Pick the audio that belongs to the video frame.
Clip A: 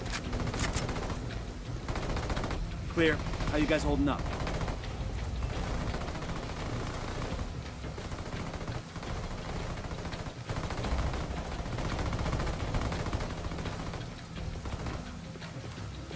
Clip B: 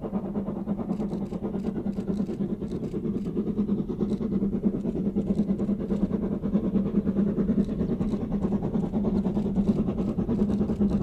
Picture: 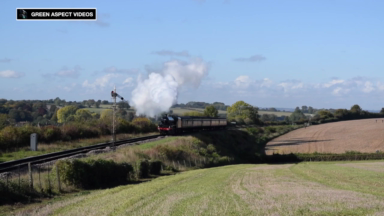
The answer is B